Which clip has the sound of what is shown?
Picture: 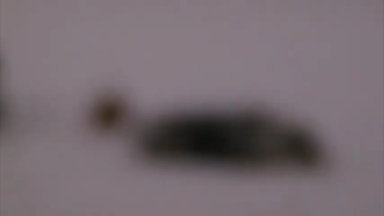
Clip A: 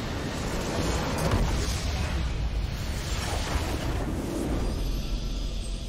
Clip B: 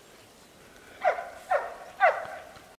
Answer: B